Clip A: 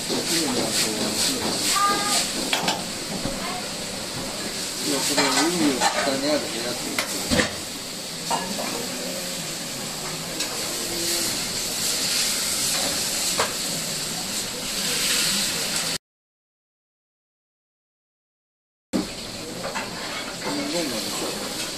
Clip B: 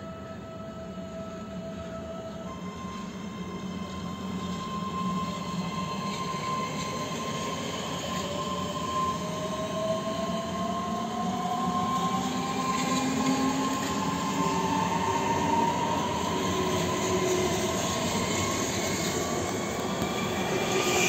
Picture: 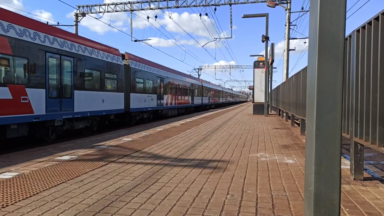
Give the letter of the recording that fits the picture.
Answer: B